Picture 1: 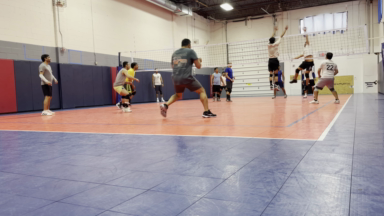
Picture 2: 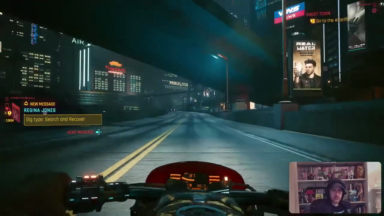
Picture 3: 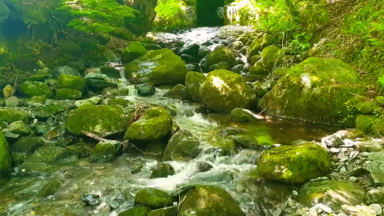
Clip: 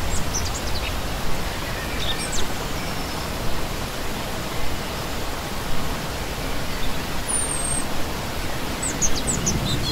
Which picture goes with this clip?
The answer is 3